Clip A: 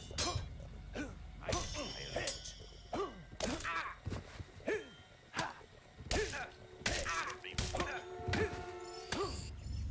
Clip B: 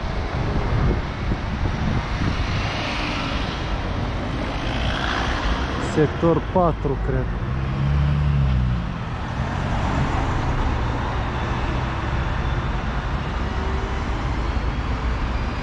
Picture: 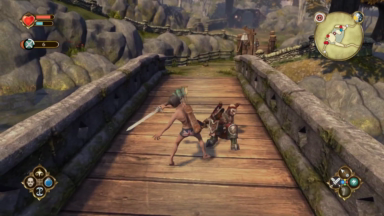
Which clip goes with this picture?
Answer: A